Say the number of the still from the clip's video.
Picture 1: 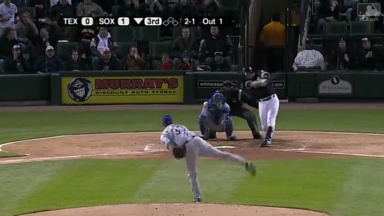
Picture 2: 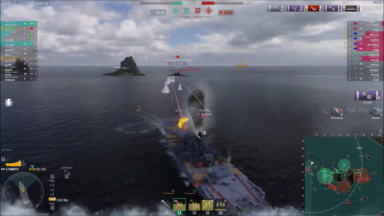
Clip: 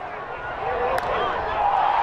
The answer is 1